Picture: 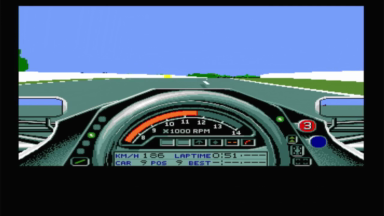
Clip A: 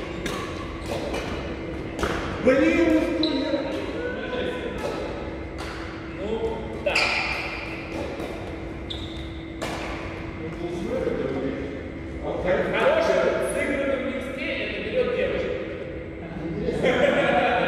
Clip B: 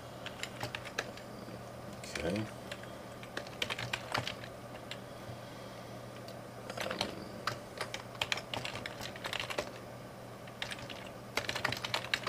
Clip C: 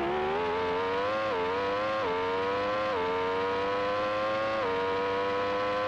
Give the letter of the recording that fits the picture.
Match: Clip C